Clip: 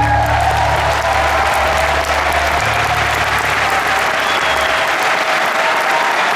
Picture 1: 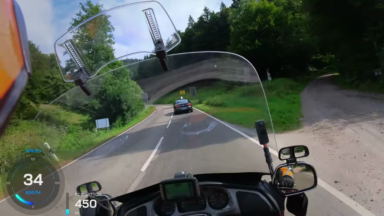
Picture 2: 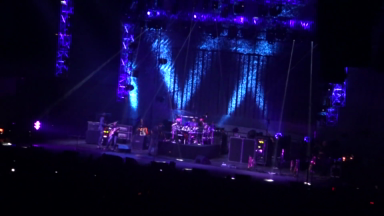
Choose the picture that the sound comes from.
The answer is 2